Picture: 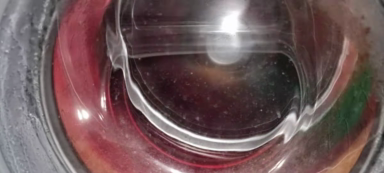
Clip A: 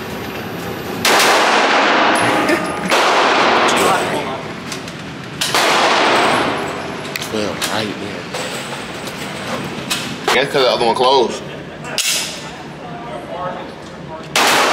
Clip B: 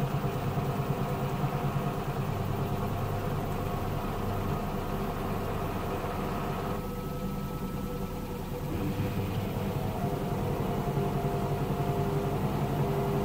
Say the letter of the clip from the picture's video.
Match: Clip B